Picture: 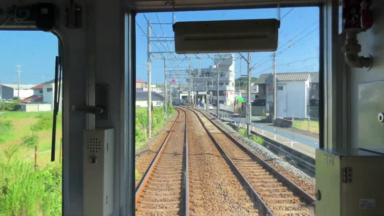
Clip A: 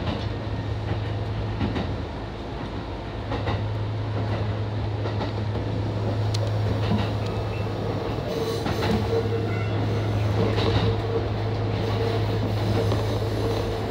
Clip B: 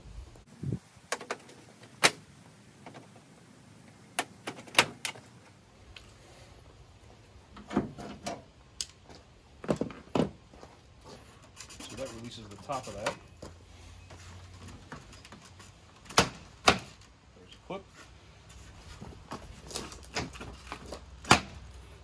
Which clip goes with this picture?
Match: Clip A